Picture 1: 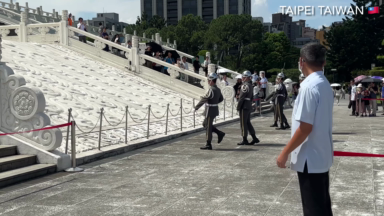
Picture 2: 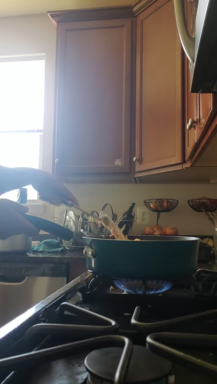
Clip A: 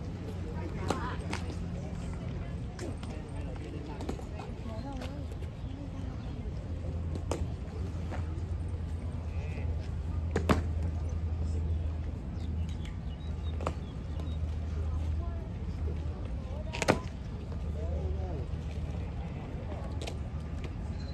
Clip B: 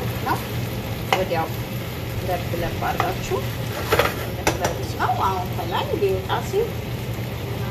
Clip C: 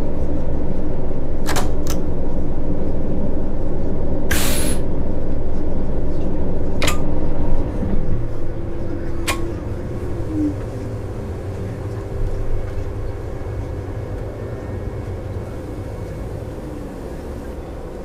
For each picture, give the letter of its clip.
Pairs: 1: A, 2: B